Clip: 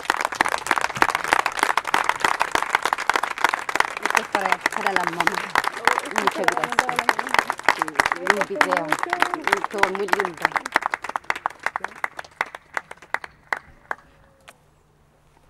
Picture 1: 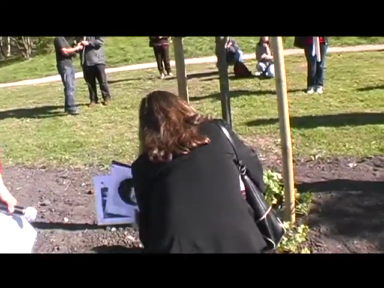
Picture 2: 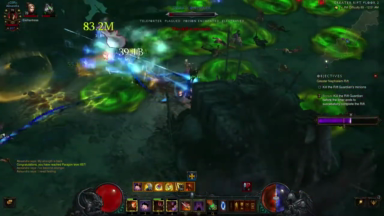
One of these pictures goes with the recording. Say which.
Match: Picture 1